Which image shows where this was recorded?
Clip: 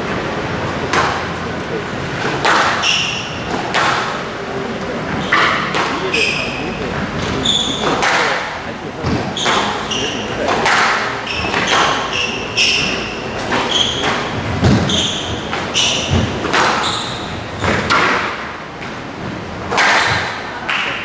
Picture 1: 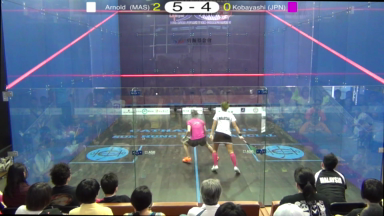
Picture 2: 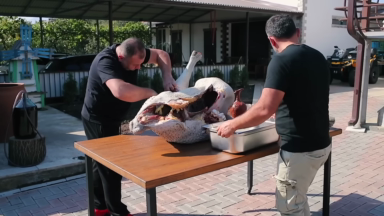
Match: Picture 1